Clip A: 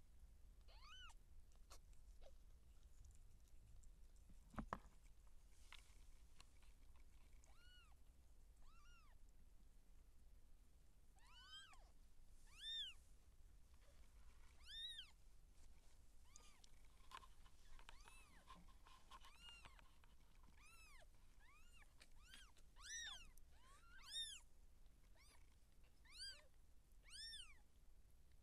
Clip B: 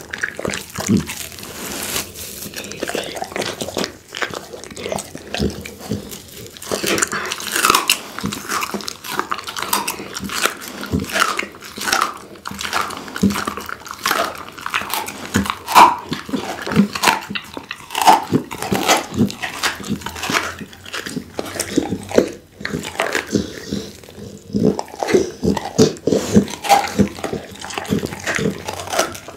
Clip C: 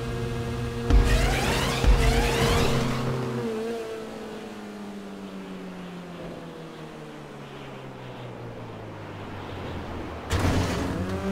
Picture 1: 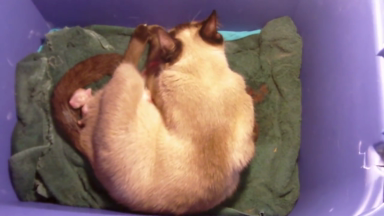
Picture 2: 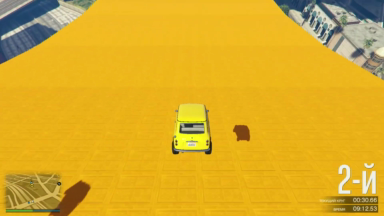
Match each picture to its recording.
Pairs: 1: A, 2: C